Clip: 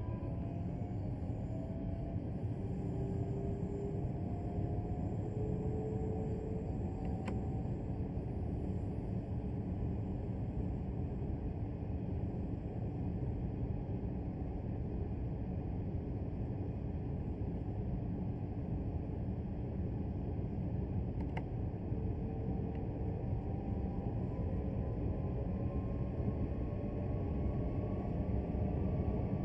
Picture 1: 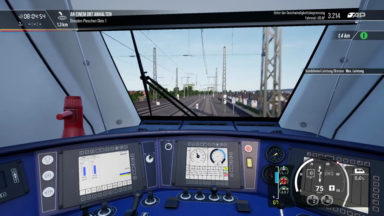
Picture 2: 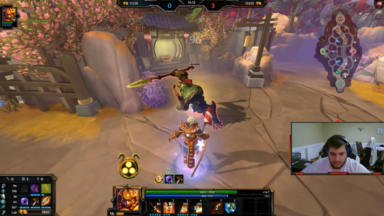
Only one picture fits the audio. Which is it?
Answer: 1